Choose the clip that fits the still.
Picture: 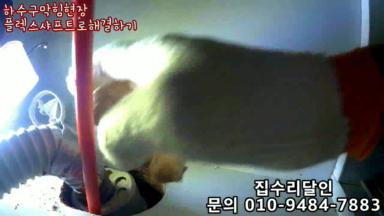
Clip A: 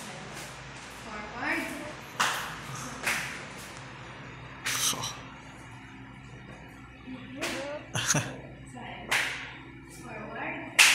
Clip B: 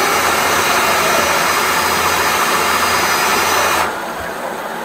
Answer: B